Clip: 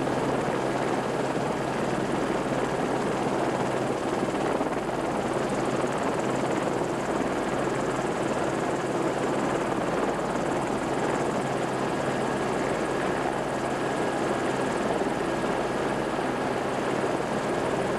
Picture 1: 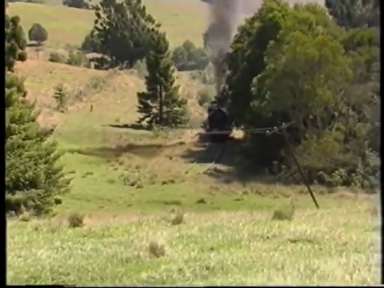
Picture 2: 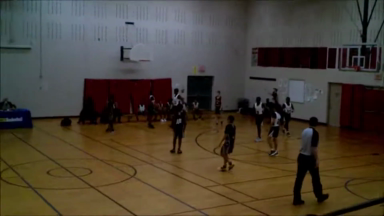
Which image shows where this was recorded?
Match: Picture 1